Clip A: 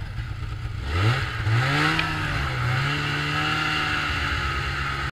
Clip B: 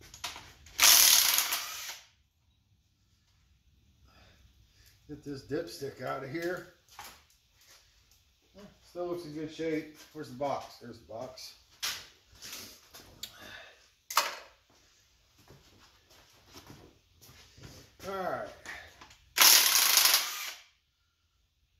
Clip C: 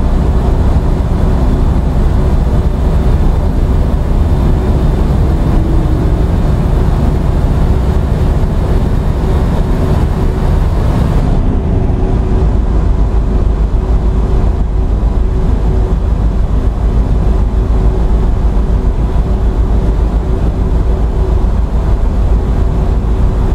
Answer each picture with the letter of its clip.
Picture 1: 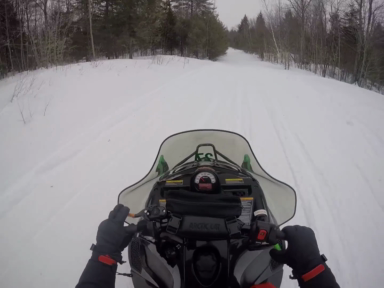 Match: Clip A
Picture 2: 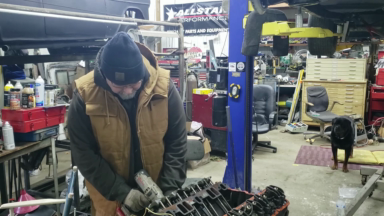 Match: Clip B